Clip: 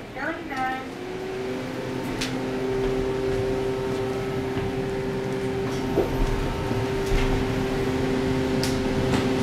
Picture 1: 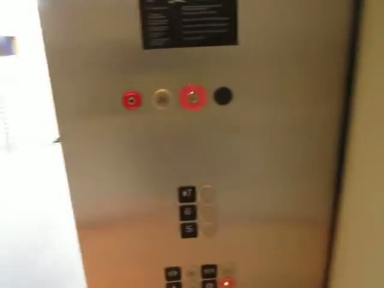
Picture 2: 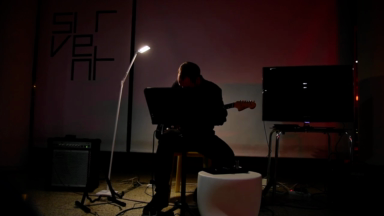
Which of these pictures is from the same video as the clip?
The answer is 1